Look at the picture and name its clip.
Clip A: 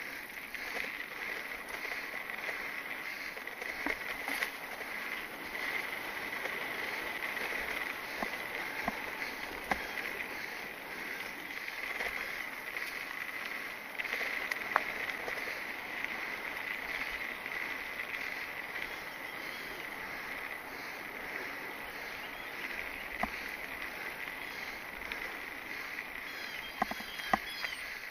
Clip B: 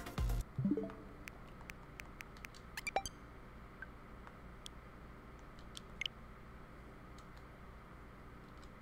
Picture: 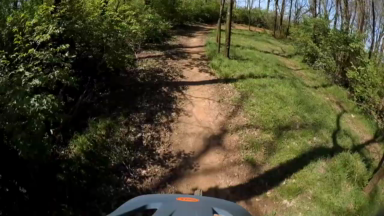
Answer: A